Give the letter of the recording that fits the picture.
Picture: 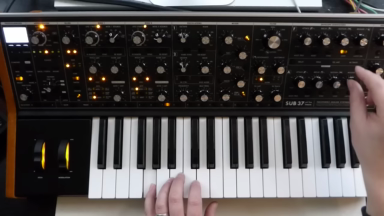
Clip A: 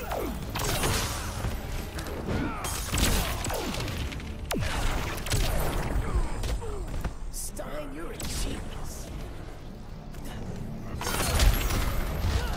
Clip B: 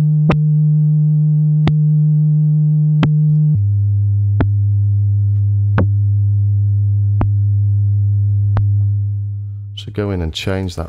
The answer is B